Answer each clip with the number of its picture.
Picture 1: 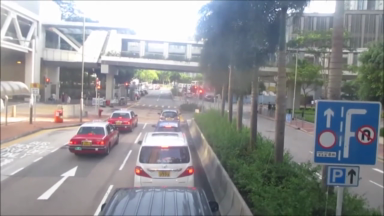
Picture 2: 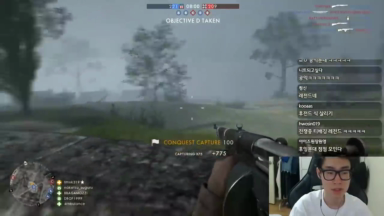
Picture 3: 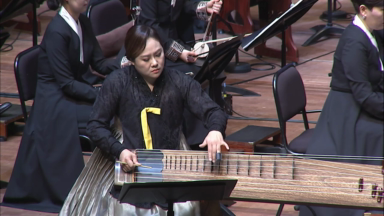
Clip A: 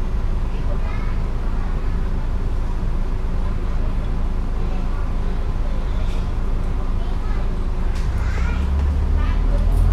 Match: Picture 1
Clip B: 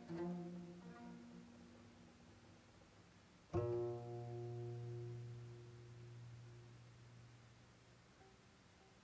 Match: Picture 3